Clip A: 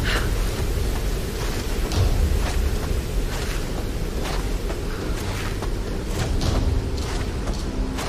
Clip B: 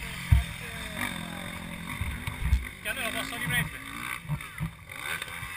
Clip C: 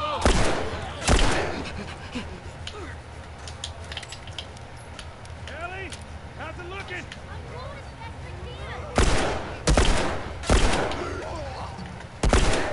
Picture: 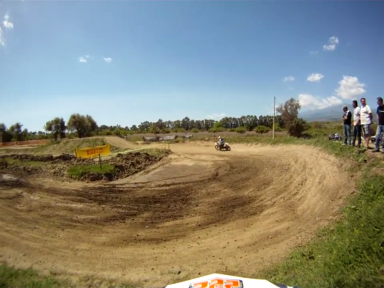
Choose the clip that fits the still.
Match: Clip B